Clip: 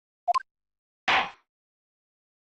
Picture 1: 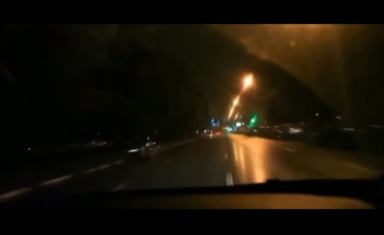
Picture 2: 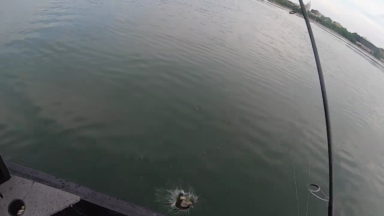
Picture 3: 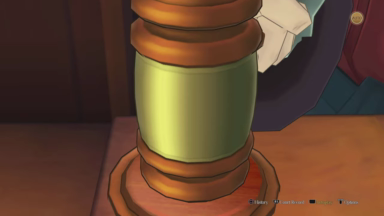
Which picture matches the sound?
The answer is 3